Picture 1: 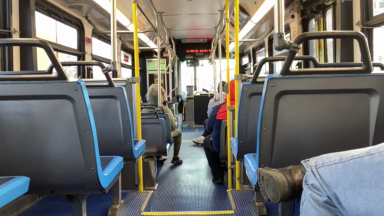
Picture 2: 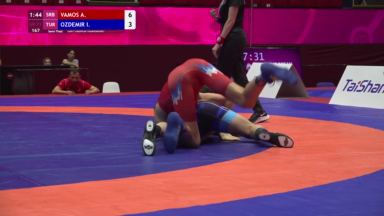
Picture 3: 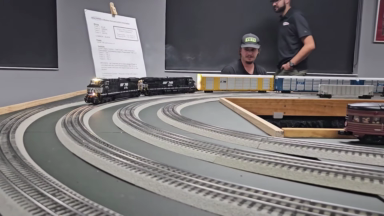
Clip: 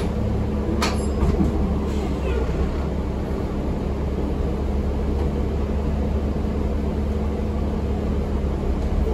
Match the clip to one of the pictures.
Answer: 1